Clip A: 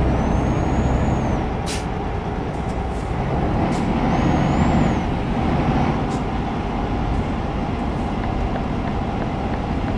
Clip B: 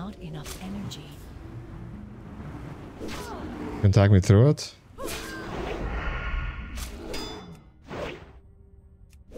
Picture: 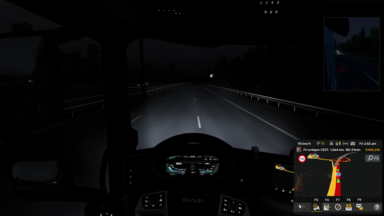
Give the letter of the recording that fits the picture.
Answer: A